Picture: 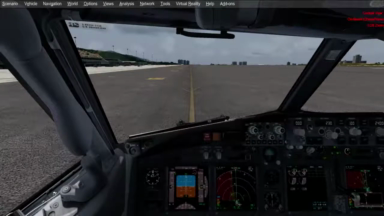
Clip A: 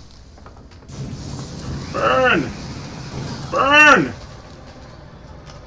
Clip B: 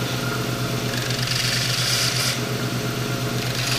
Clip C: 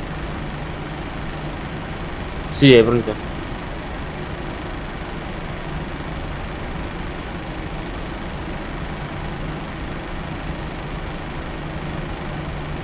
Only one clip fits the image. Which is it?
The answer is C